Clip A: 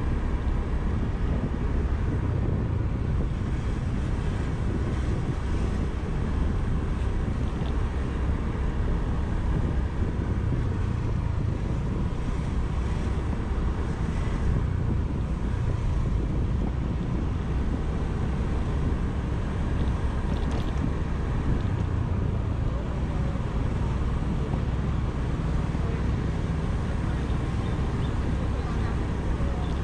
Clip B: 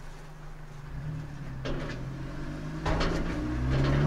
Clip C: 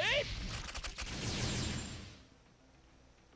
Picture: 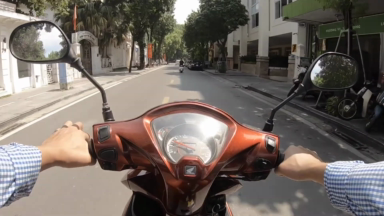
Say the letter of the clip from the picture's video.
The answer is A